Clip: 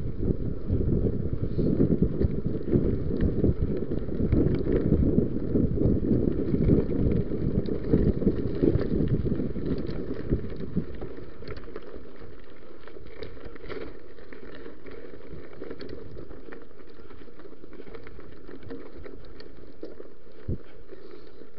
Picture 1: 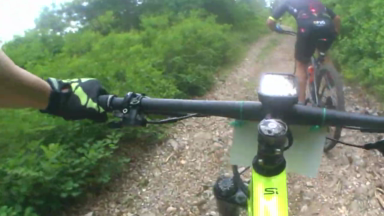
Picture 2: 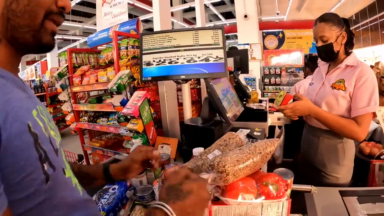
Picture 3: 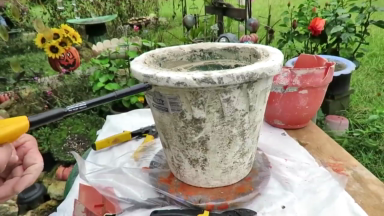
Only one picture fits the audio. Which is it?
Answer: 1